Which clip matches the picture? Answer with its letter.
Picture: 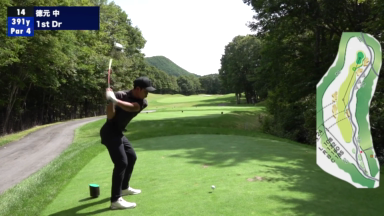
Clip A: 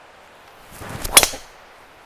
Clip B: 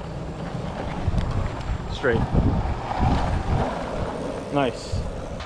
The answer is A